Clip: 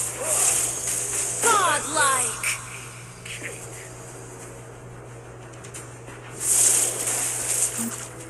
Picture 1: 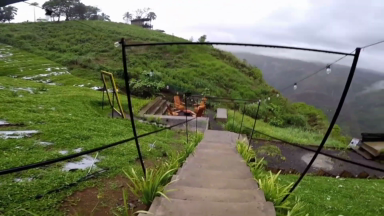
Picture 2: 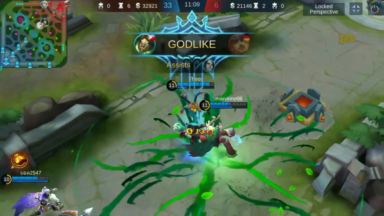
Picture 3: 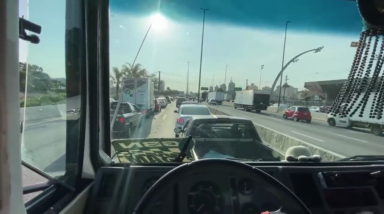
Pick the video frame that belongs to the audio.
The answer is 2